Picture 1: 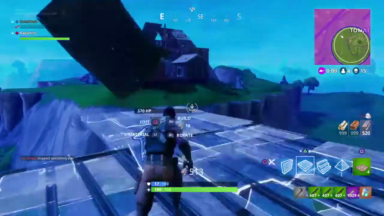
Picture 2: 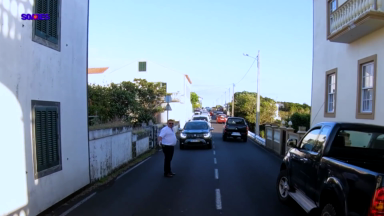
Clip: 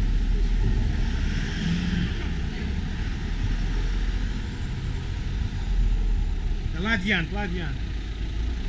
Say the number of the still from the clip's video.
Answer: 2